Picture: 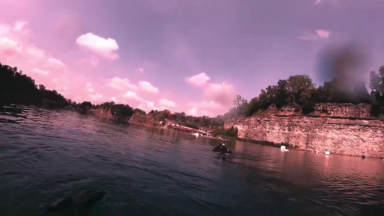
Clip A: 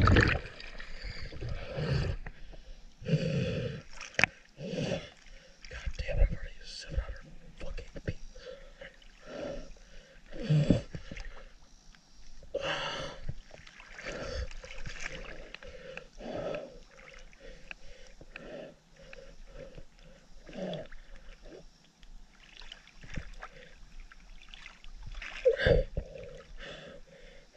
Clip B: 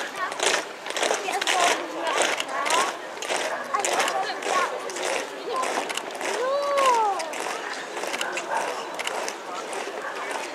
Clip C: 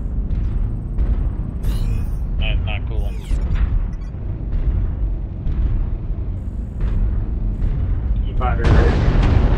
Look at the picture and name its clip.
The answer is A